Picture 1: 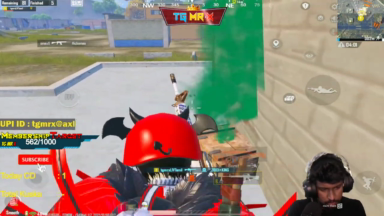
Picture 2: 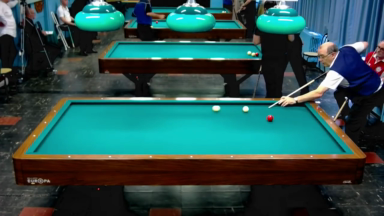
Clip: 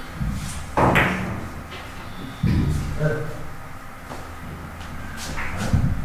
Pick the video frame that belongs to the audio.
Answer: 2